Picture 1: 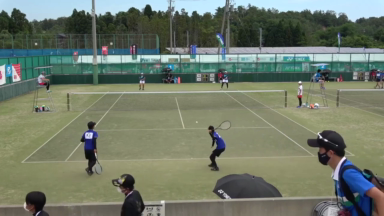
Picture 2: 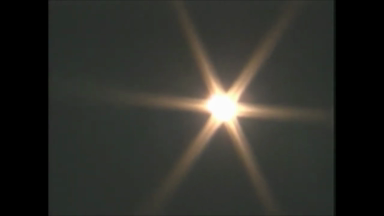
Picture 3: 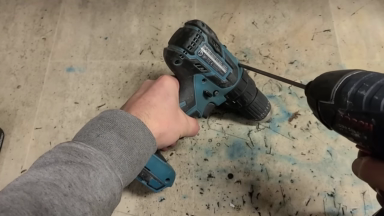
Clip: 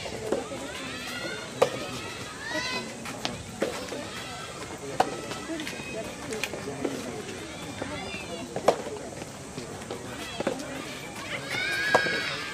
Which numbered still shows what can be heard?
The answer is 1